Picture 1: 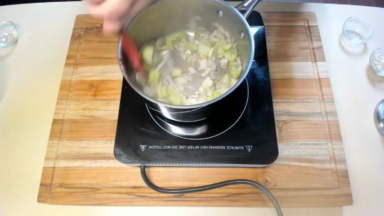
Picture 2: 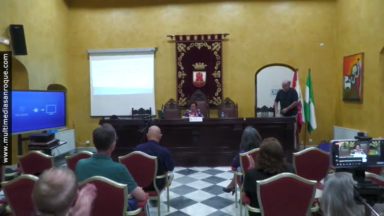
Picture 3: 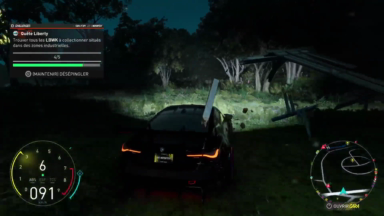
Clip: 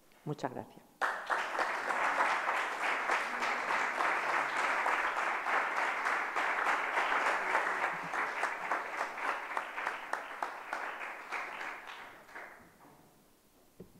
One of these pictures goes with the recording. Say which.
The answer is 2